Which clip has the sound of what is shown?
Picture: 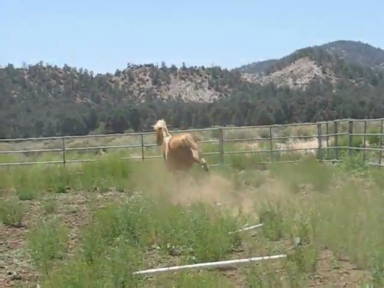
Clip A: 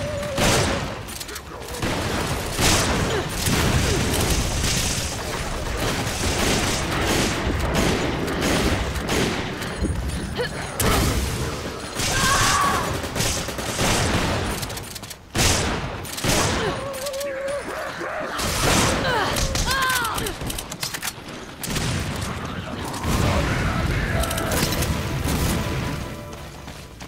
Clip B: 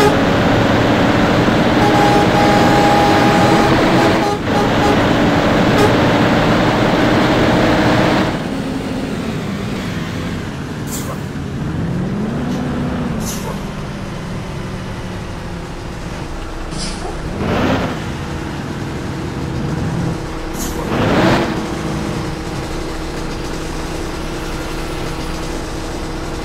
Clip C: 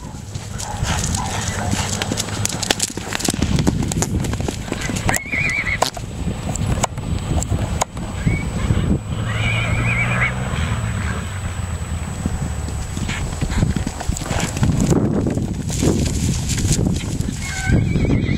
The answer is C